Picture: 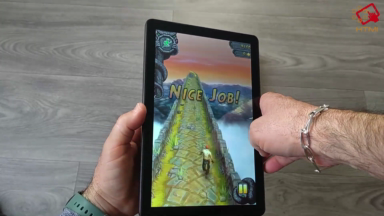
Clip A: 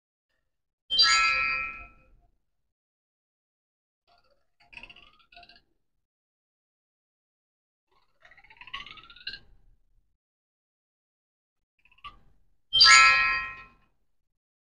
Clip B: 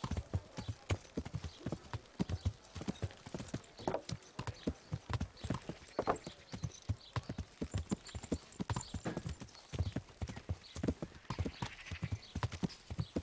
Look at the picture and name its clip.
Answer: A